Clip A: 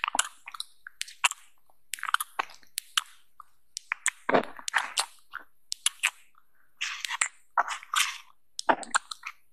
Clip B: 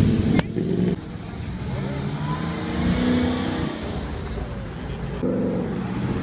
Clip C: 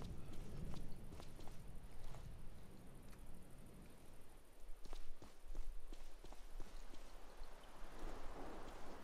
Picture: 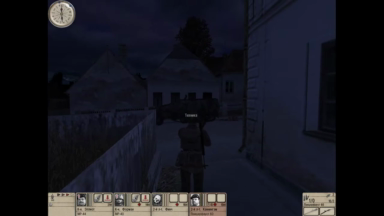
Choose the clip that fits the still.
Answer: C